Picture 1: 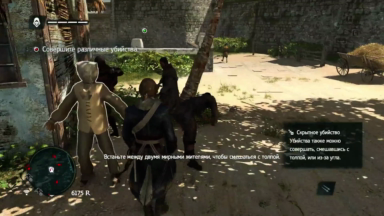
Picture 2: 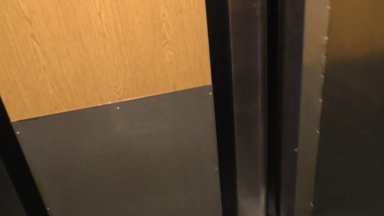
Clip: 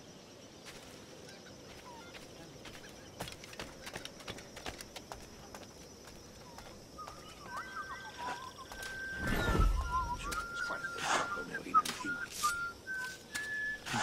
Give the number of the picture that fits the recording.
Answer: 1